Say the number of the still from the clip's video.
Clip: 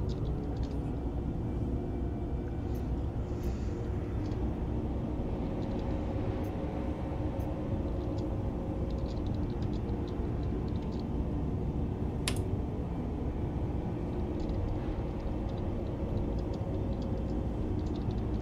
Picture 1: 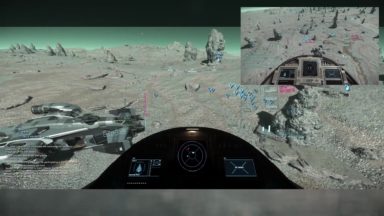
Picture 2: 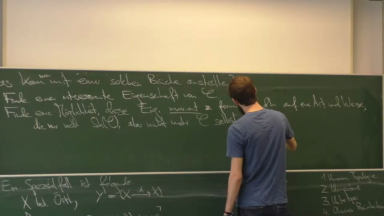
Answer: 1